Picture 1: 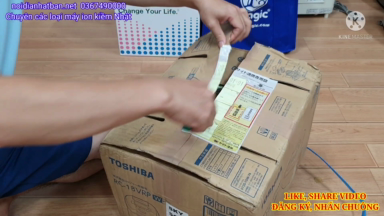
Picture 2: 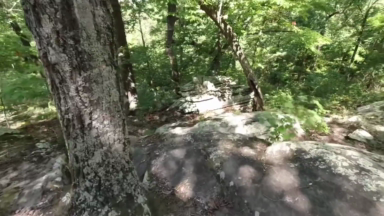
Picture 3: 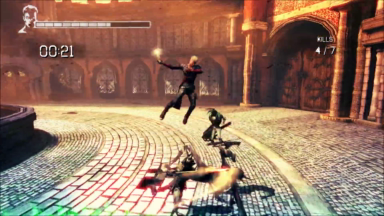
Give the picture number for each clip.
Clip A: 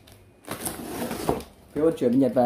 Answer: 1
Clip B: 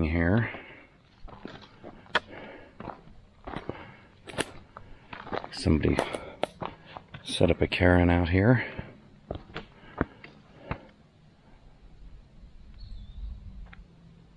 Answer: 2